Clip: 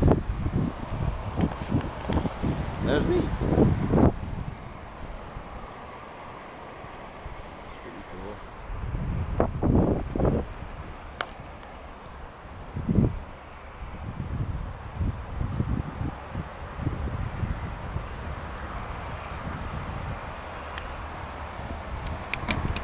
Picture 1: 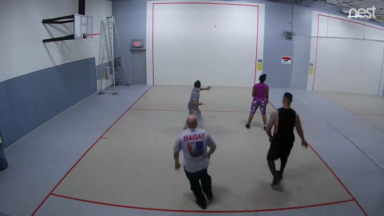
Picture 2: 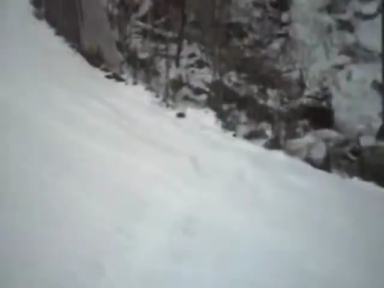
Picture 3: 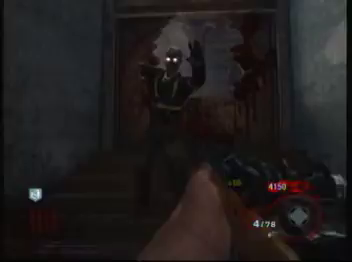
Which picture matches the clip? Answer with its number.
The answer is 2